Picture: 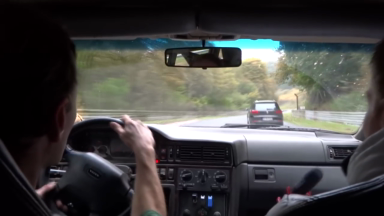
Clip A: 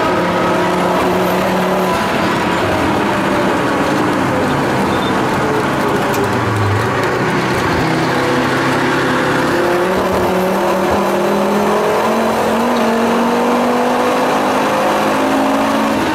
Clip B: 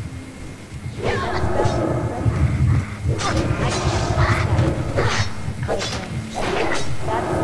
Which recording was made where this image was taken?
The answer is A